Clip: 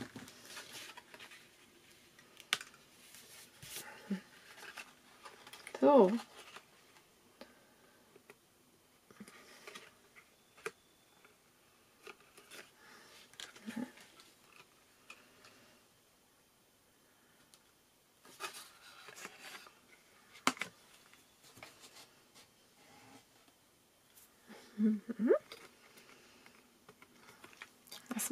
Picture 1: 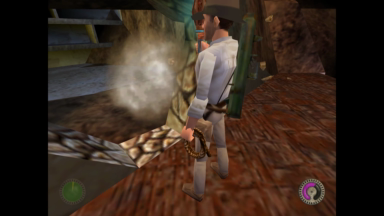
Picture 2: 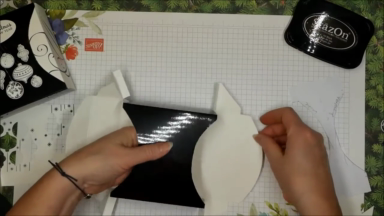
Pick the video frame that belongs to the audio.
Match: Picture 2